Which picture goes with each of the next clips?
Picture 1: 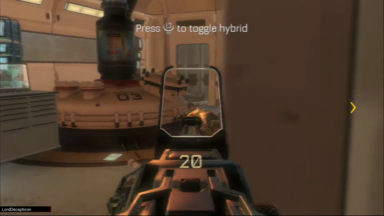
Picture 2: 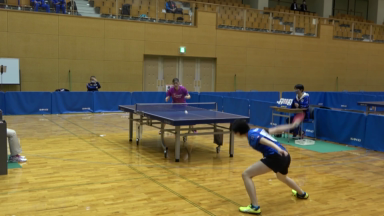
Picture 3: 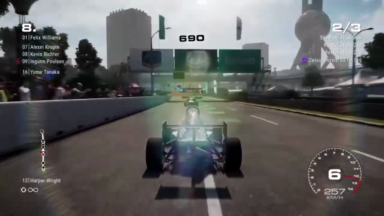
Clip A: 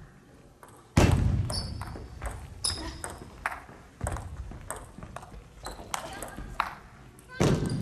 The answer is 2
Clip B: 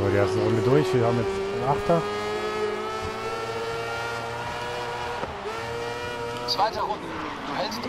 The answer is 3